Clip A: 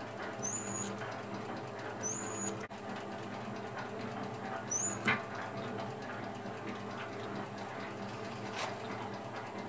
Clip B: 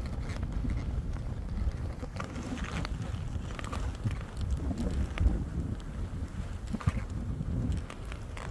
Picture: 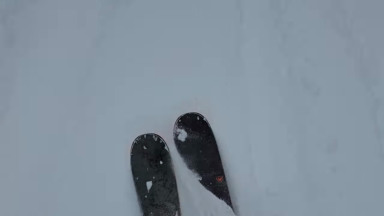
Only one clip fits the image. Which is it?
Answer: B